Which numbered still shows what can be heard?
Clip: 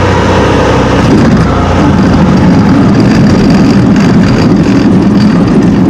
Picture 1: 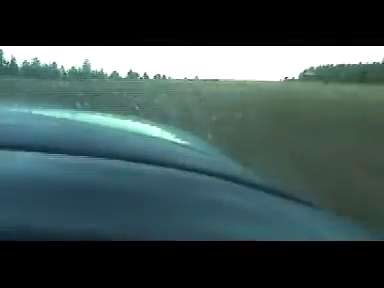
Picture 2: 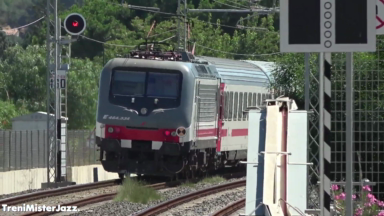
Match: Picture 1